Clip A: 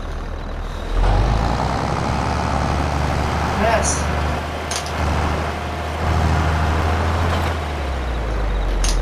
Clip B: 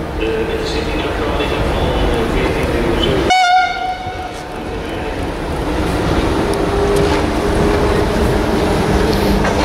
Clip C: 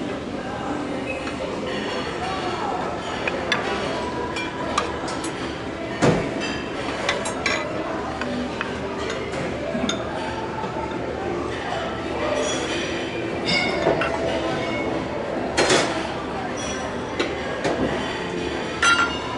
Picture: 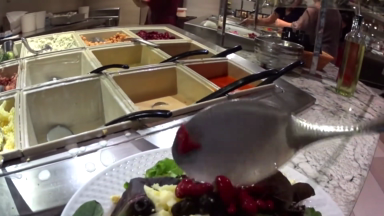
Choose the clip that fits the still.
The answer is C